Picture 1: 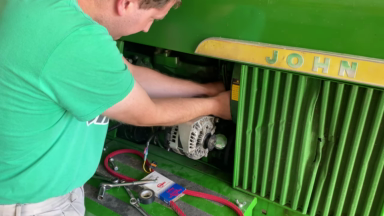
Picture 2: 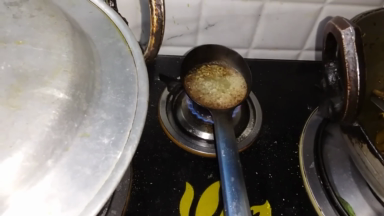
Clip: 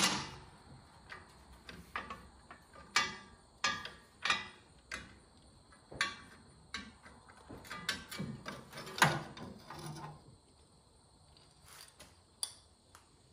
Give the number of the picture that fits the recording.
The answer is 1